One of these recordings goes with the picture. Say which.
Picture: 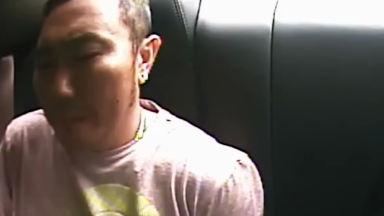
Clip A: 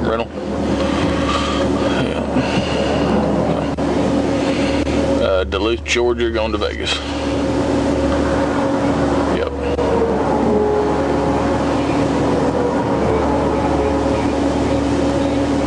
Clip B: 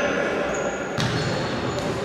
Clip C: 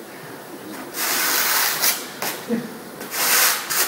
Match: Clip A